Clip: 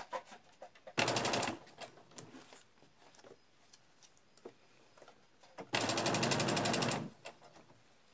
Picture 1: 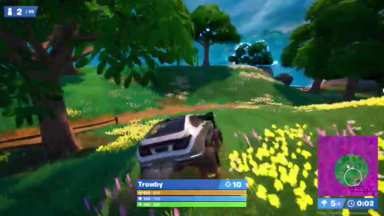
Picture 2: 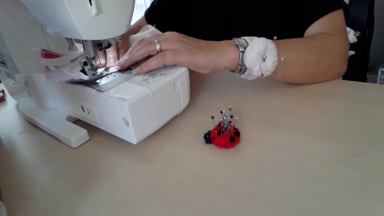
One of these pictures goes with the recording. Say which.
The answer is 2